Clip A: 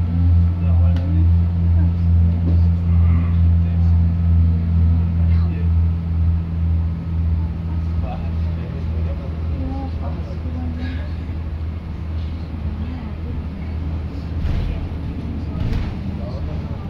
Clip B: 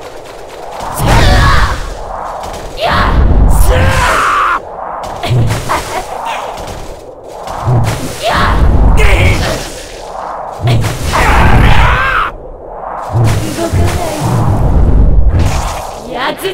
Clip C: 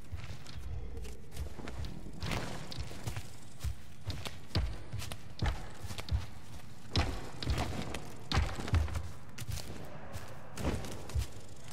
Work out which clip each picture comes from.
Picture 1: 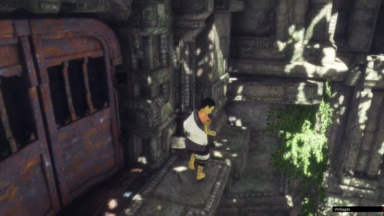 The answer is C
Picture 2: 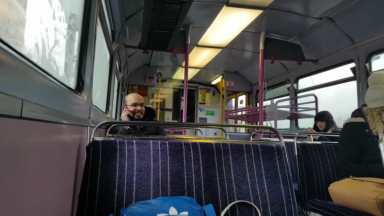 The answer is A